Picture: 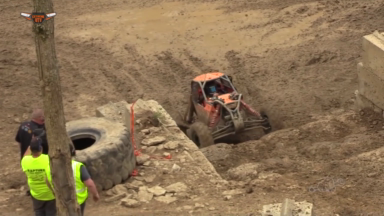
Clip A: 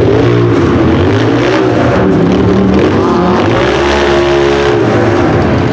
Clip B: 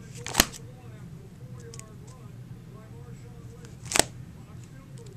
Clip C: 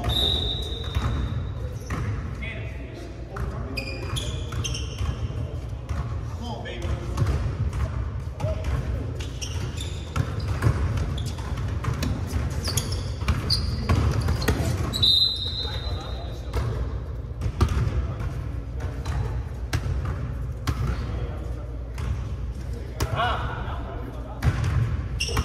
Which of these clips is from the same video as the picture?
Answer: A